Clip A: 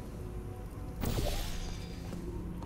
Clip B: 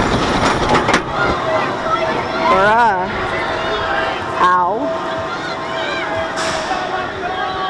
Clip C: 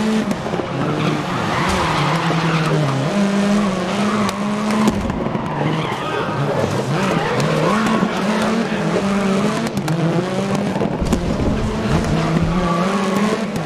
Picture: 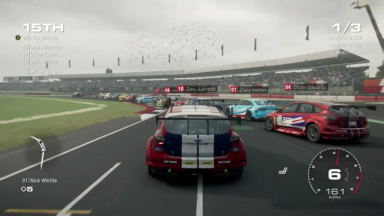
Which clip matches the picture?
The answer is C